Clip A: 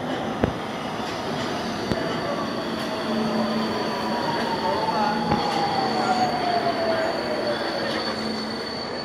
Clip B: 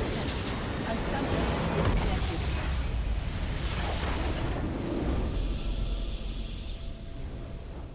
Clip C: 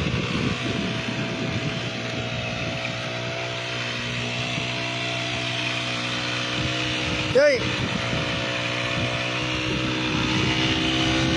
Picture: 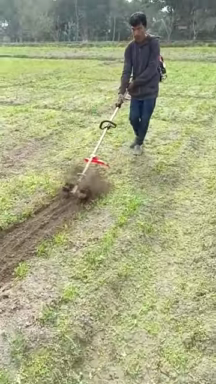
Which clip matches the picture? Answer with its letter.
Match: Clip C